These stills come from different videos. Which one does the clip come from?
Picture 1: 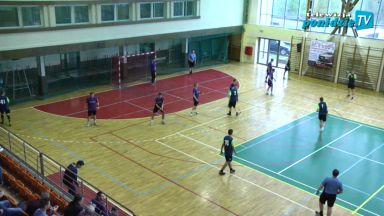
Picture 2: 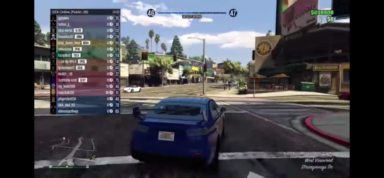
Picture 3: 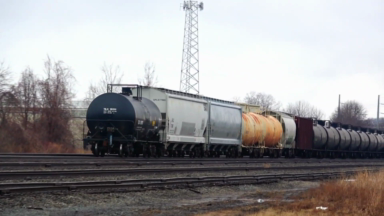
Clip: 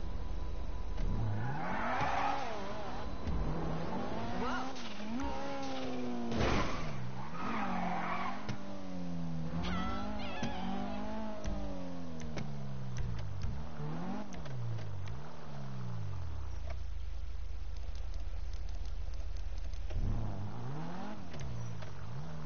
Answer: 2